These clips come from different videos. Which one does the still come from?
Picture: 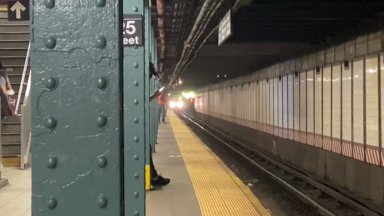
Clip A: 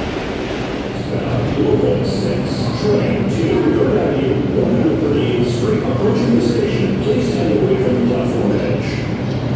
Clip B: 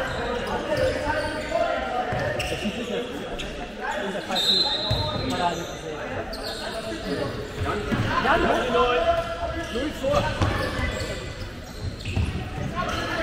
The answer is A